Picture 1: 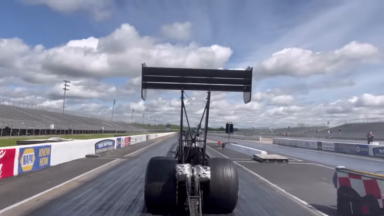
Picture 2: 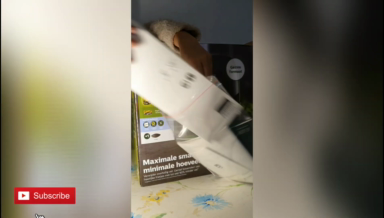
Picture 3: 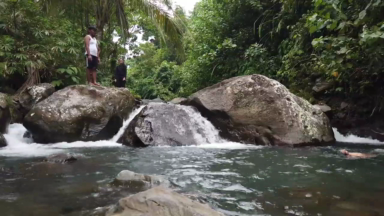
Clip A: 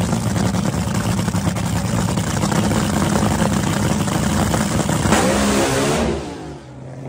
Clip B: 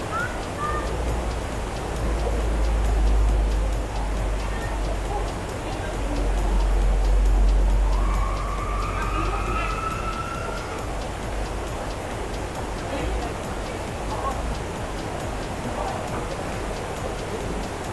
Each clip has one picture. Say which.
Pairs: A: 1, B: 3